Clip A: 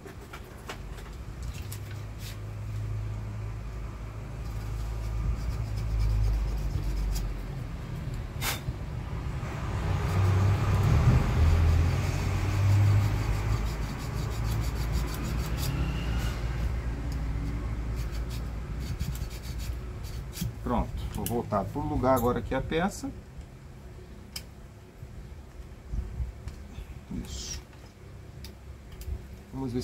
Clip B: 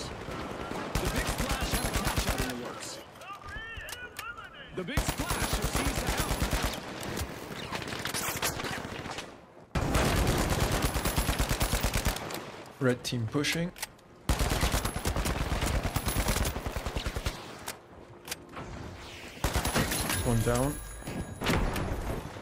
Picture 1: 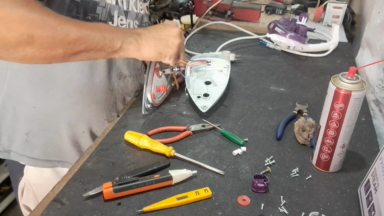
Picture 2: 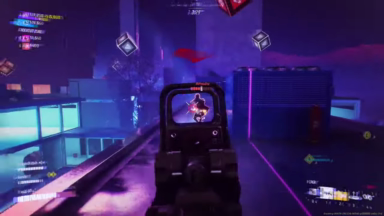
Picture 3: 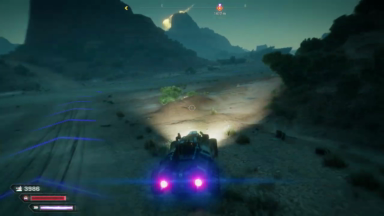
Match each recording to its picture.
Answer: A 1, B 2